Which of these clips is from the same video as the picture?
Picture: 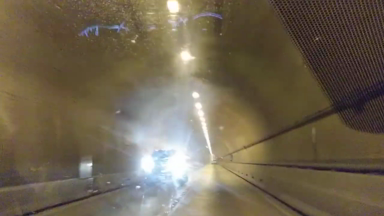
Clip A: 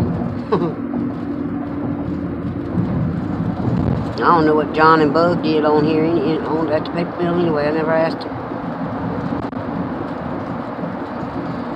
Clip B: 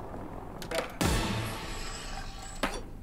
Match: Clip A